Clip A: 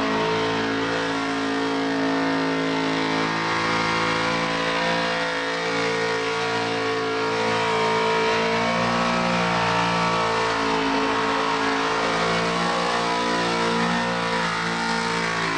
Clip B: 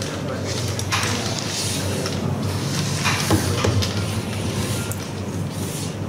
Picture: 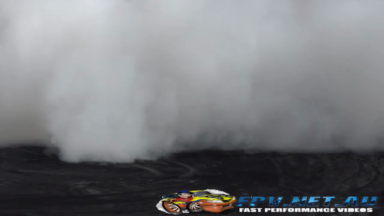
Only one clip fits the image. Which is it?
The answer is A